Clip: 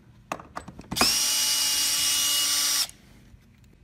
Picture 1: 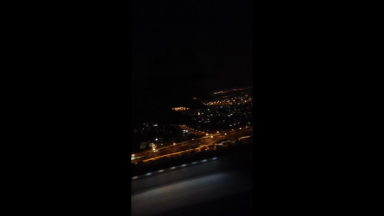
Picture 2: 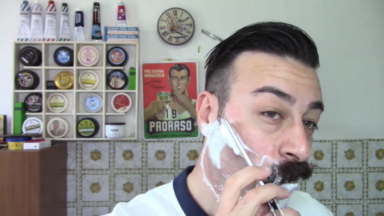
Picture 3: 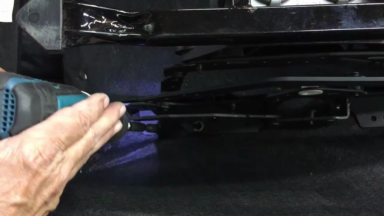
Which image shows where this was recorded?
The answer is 3